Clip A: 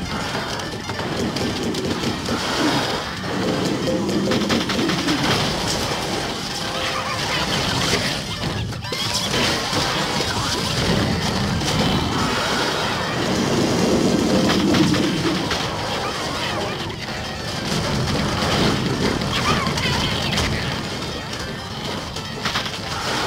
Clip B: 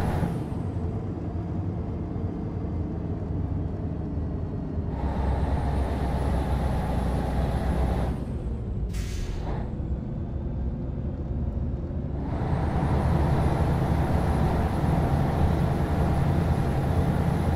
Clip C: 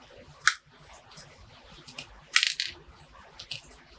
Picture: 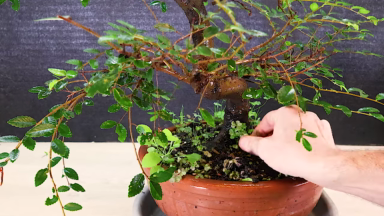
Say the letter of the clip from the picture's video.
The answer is C